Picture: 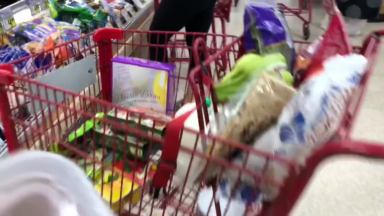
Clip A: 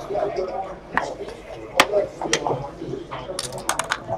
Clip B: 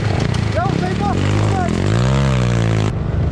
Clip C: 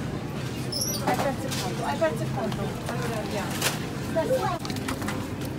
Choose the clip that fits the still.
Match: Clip C